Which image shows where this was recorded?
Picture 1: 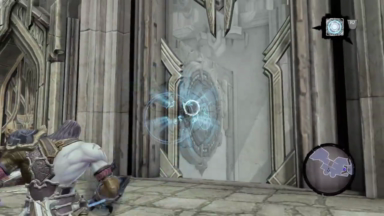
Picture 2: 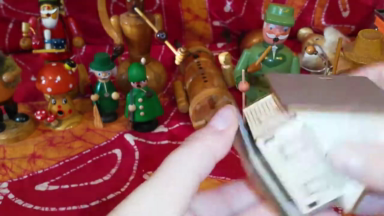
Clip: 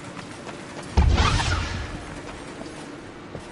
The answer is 1